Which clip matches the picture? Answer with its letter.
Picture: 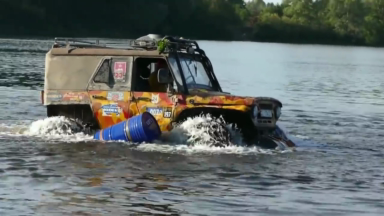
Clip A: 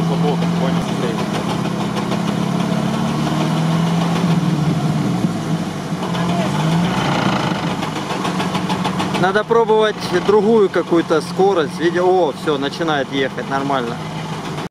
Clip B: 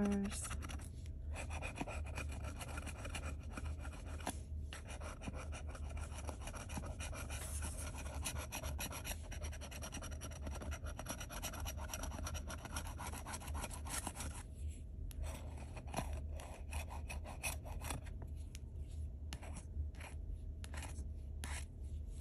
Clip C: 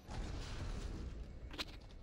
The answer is A